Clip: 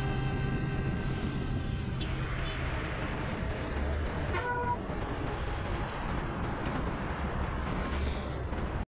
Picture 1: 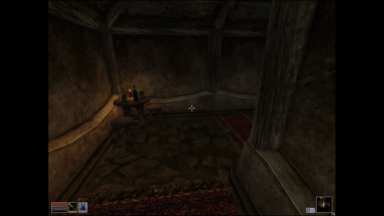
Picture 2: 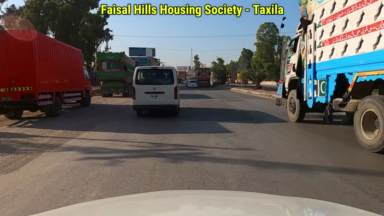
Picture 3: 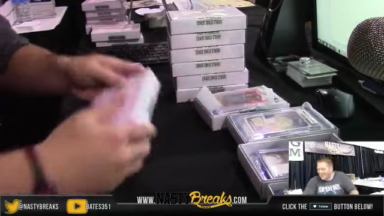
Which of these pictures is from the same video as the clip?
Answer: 2